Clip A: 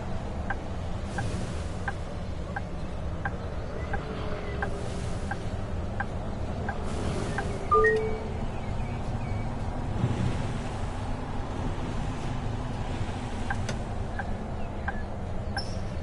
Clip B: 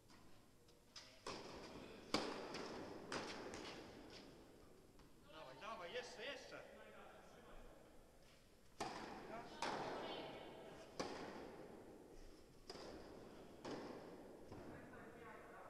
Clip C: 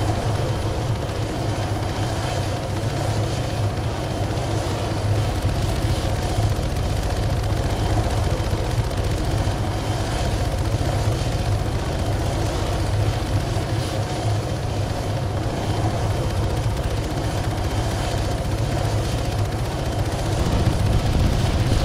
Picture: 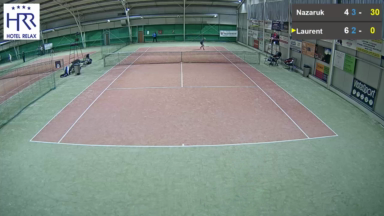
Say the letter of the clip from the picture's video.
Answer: B